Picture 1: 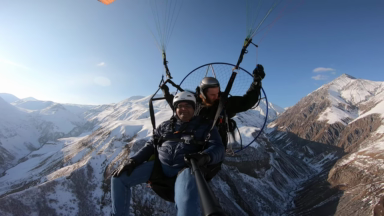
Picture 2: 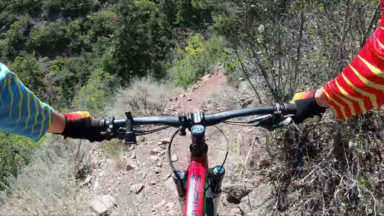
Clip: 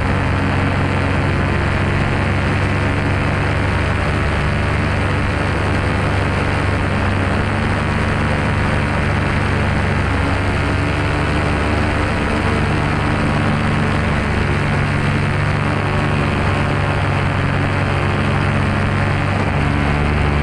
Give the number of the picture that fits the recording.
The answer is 1